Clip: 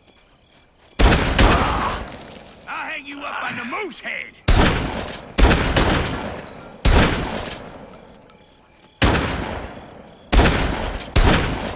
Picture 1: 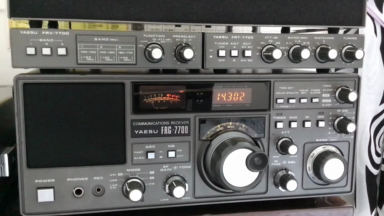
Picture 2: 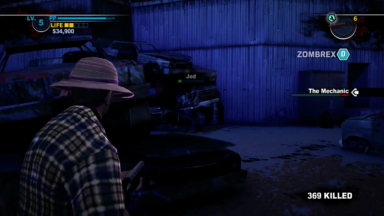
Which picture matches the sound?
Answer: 2